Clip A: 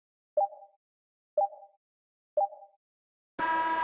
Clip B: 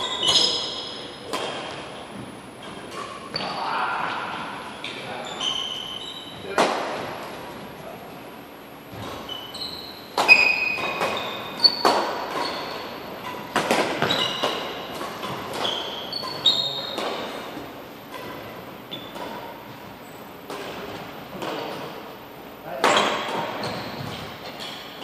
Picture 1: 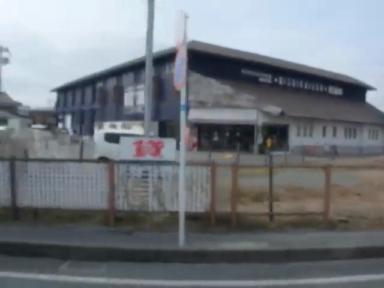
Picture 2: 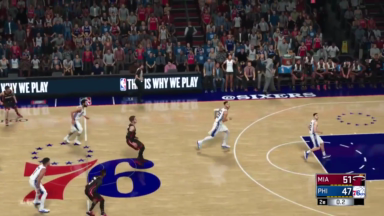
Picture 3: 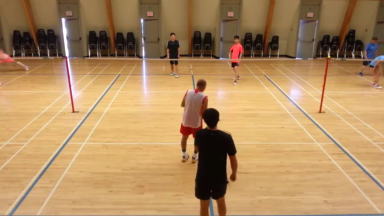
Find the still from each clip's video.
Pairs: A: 2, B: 3